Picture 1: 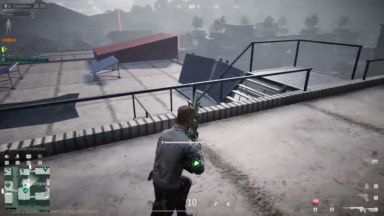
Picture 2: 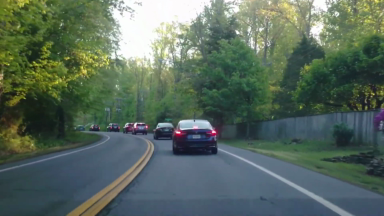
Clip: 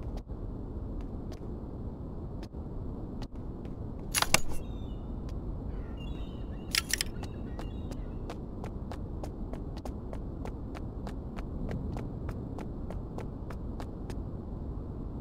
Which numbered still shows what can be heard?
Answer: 1